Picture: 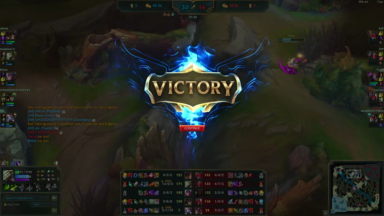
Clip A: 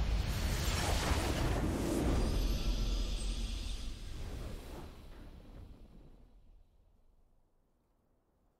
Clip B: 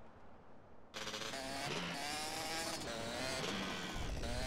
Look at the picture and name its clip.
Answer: A